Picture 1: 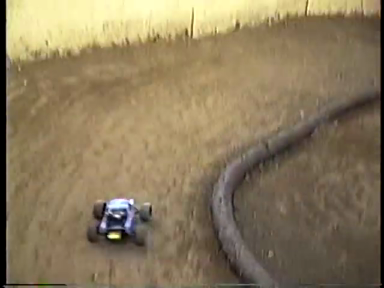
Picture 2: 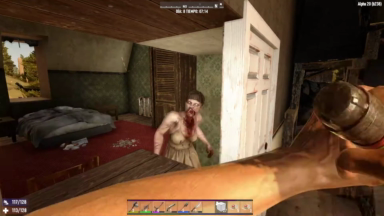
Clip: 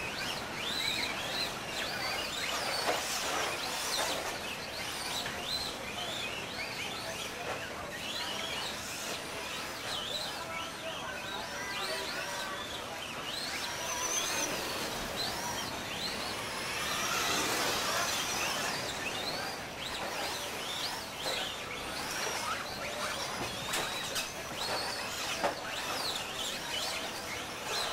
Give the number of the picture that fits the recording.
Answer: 1